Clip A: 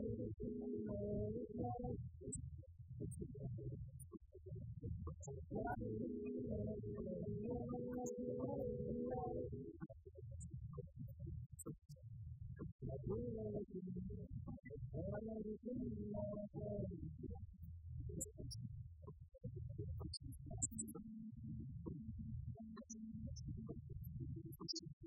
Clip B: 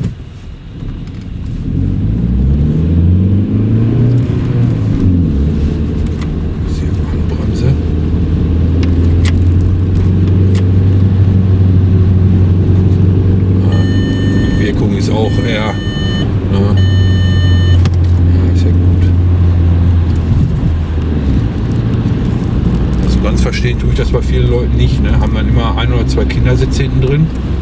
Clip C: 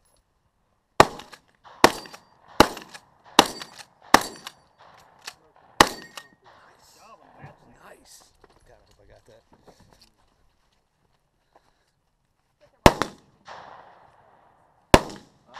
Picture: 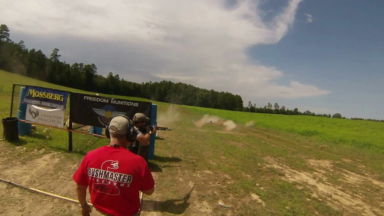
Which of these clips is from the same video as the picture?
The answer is C